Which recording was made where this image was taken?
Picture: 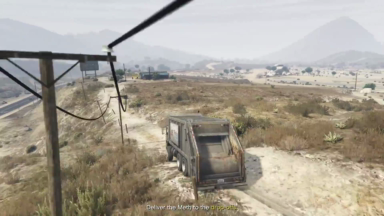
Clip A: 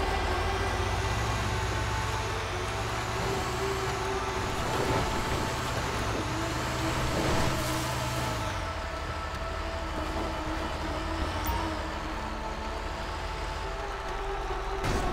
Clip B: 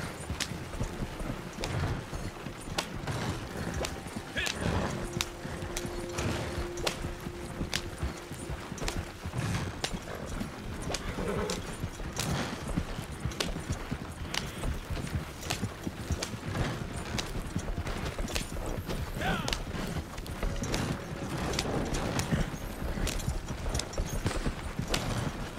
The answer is A